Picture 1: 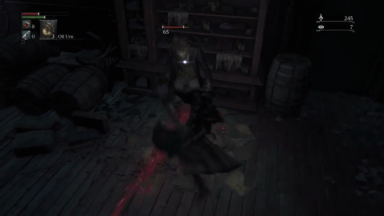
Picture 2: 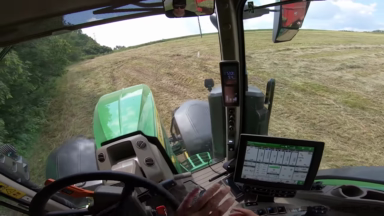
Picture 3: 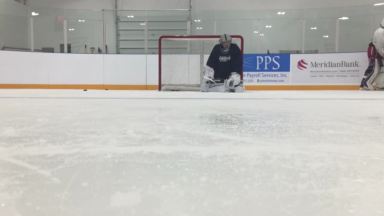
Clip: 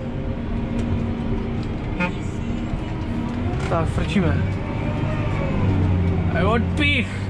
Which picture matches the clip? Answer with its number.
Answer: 2